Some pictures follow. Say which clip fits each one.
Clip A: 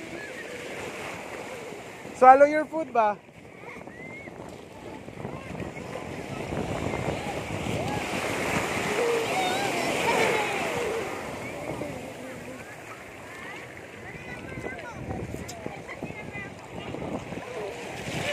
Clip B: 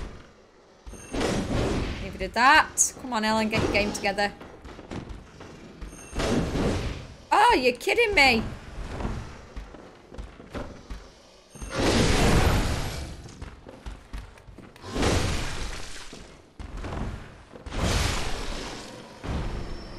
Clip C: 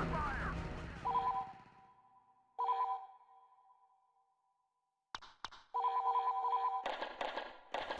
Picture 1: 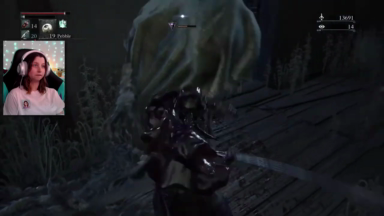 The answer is B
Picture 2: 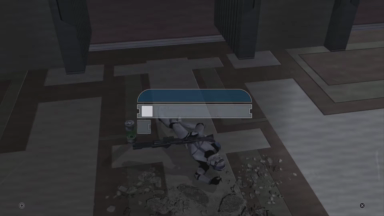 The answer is C